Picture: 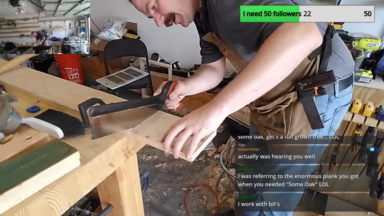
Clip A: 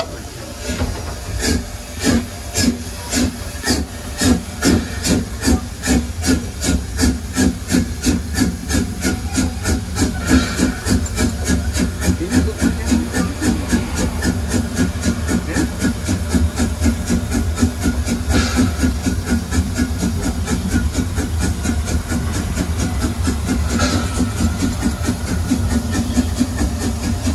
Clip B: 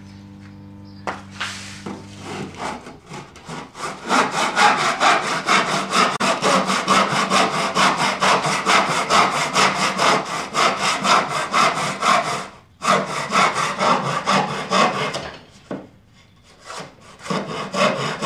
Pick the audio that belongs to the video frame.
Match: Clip B